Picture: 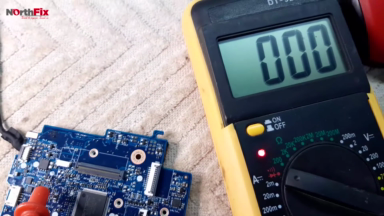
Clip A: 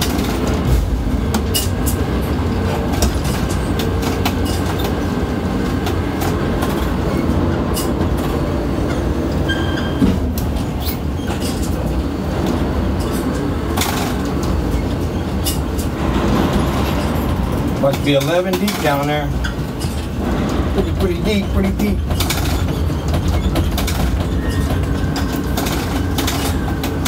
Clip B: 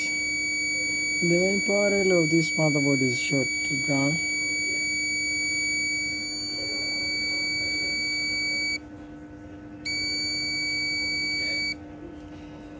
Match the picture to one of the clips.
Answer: B